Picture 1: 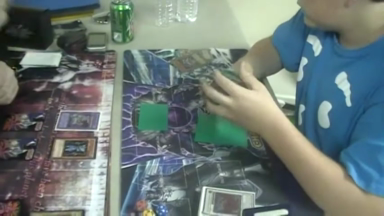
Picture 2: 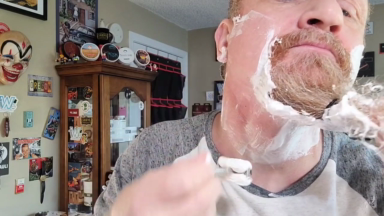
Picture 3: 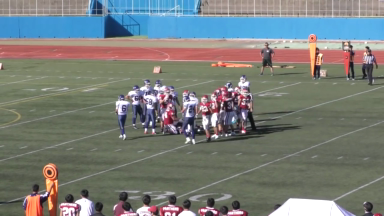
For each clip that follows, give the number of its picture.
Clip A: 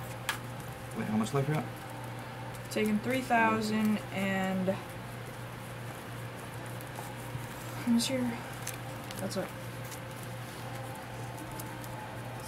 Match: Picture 1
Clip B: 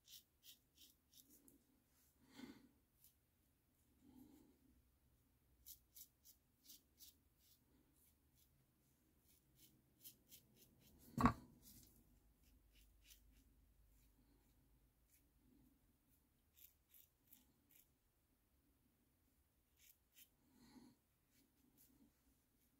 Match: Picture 2